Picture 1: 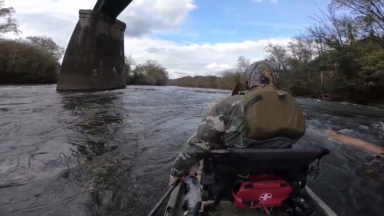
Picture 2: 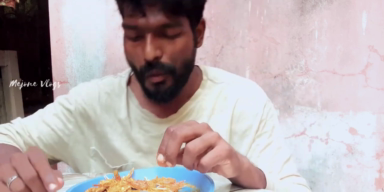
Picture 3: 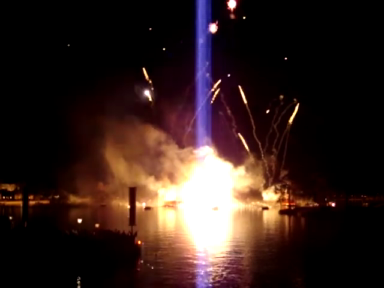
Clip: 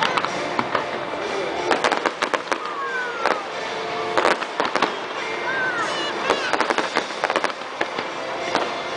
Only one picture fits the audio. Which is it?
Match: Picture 3